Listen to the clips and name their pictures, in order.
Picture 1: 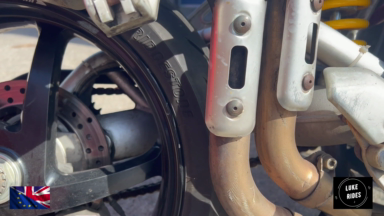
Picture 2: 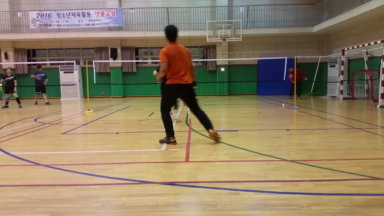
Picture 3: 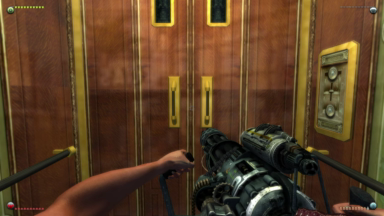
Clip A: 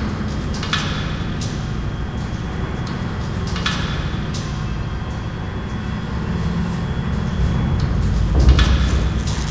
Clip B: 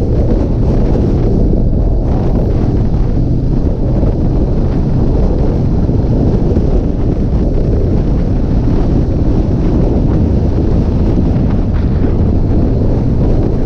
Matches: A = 3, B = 1